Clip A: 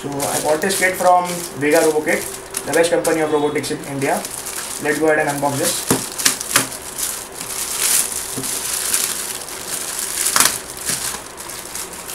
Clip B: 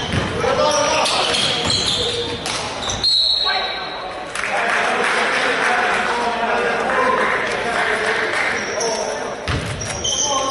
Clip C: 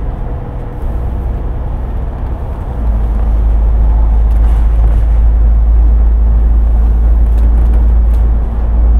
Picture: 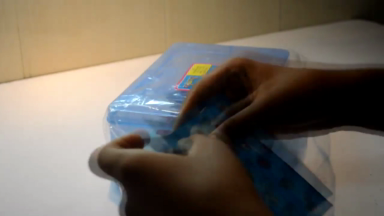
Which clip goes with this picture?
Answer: A